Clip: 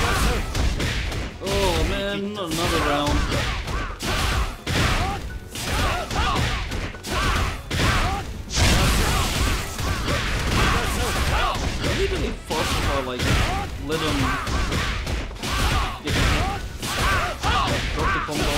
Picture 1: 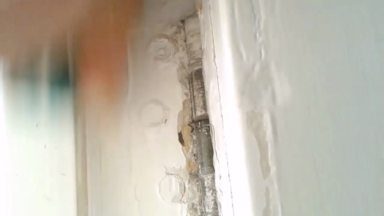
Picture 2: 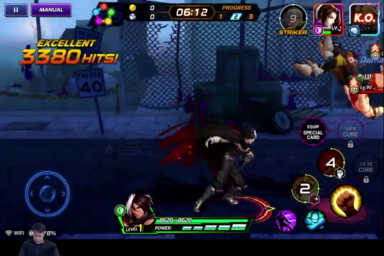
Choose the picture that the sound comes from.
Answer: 2